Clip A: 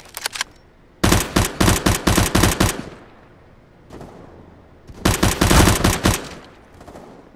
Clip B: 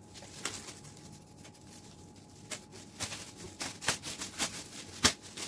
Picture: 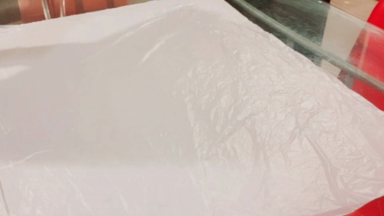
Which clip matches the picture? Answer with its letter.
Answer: B